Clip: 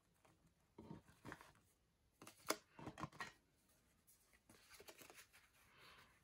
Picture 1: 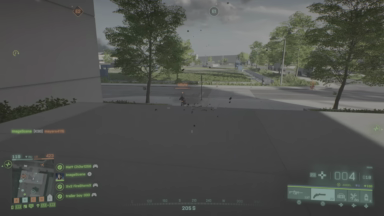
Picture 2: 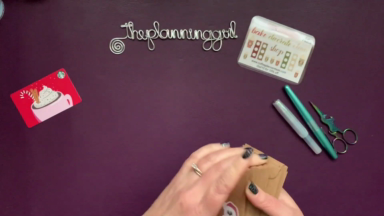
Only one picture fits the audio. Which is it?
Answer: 2